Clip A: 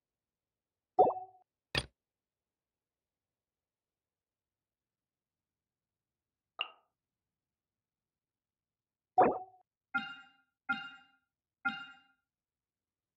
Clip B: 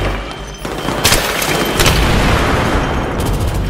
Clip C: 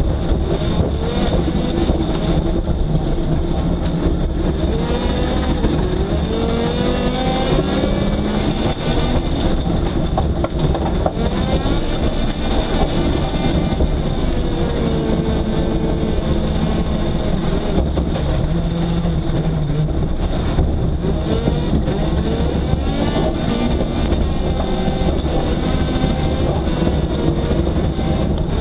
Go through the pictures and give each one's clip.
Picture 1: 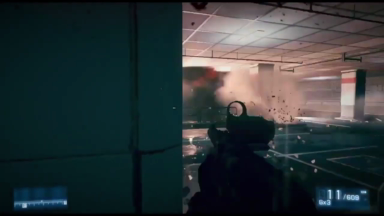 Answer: B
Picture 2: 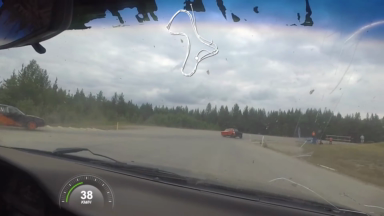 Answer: C